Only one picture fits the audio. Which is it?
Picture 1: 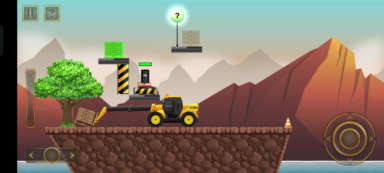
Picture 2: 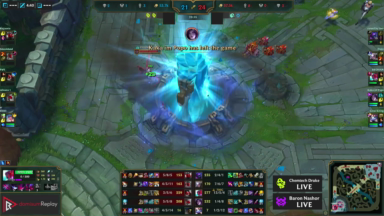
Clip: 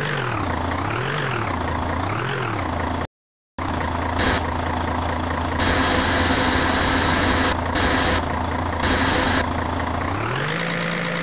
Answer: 1